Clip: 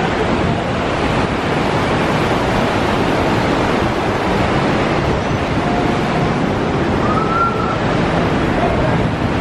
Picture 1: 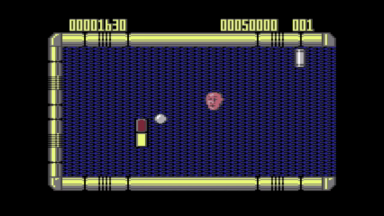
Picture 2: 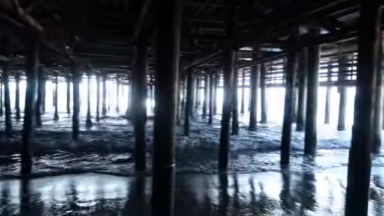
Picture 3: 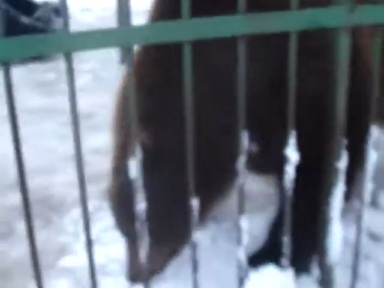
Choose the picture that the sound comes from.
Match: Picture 2